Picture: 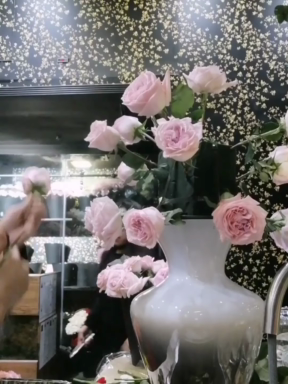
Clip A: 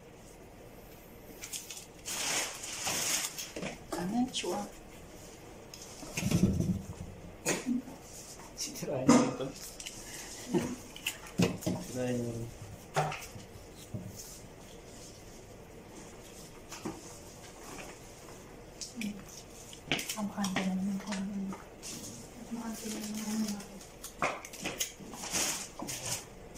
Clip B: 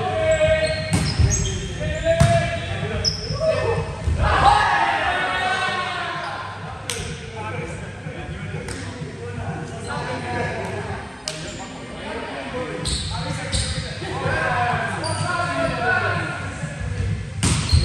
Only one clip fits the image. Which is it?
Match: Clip A